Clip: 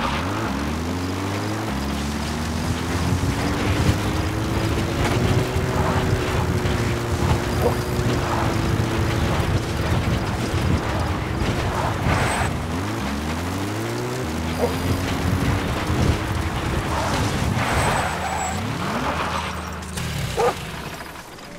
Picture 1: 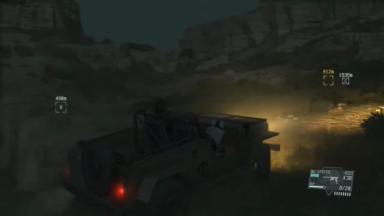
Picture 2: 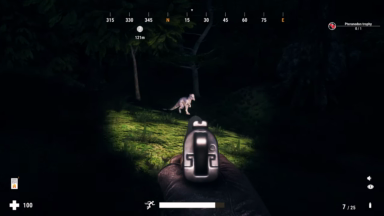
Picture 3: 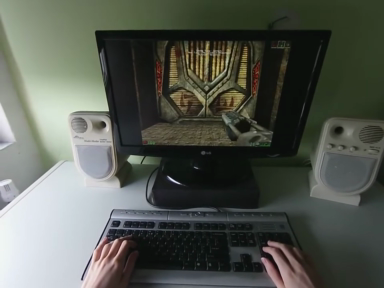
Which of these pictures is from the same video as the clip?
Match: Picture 1